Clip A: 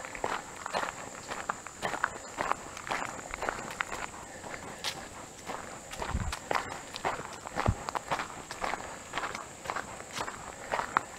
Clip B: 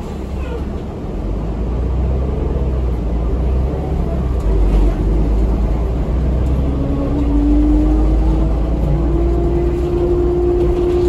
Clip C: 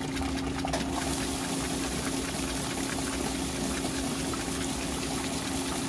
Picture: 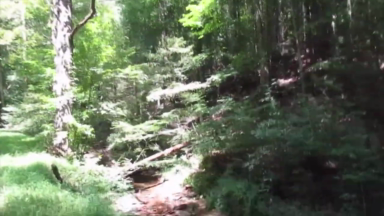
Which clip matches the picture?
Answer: A